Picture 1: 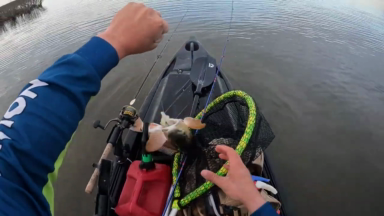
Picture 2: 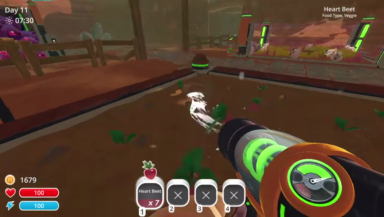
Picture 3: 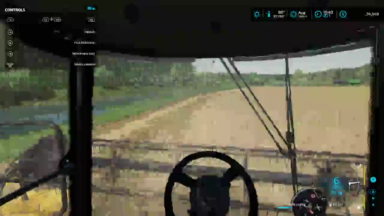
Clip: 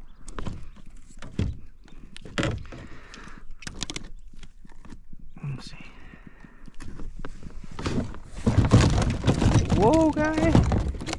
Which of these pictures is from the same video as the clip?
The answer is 1